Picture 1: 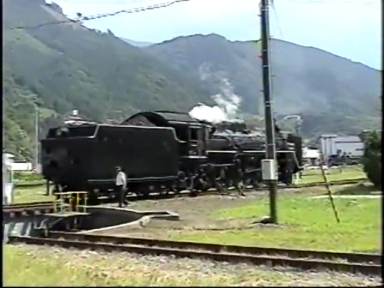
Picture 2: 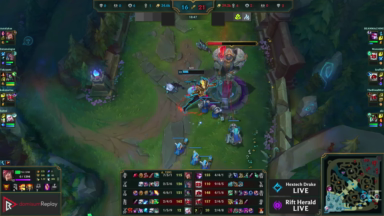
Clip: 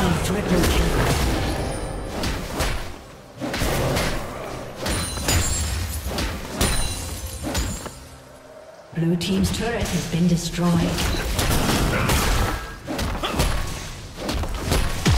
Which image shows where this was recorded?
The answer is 2